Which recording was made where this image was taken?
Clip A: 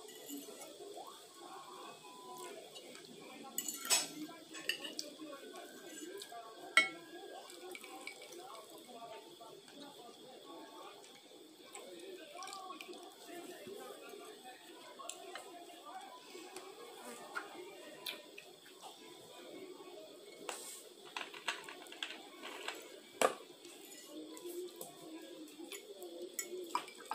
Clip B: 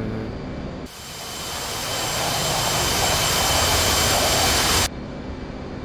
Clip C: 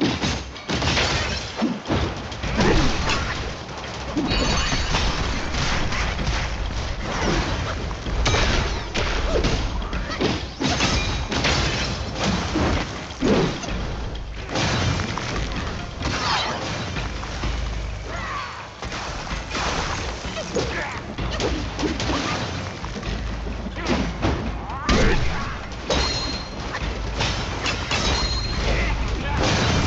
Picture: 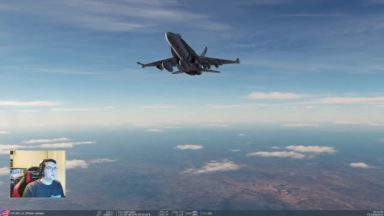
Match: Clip B